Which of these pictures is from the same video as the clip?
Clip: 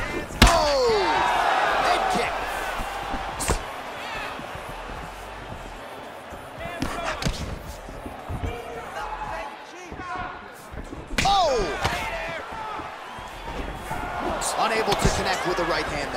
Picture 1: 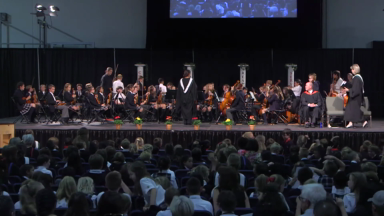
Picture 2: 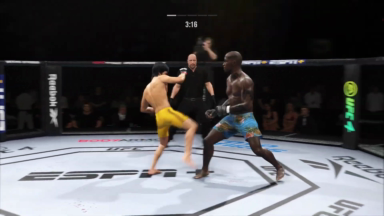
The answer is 2